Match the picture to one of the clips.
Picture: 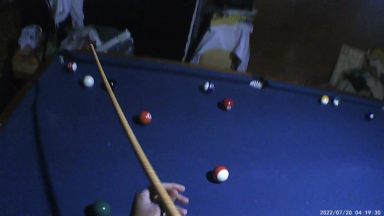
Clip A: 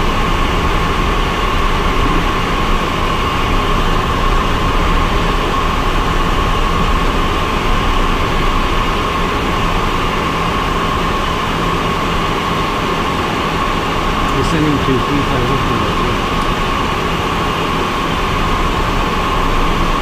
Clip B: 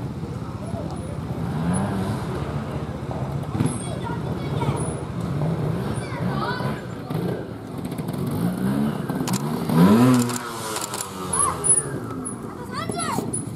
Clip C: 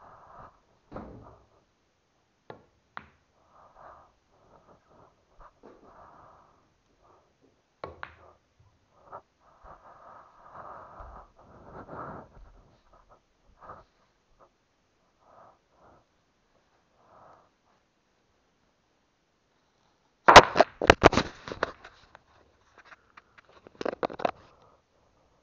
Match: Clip C